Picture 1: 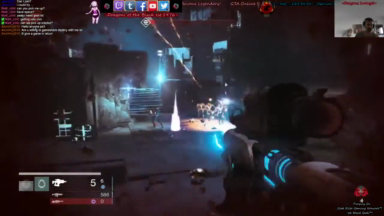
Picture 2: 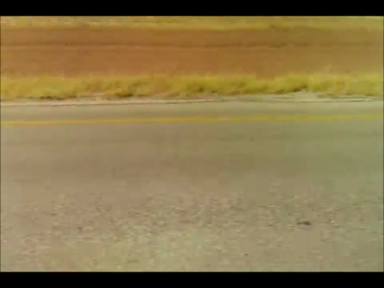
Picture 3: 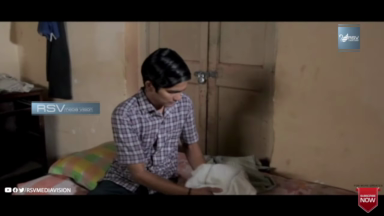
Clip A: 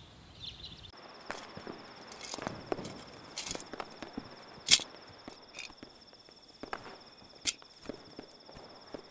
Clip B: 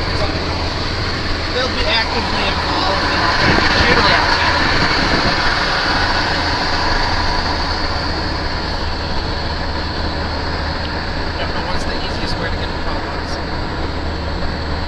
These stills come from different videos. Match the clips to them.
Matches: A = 3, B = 2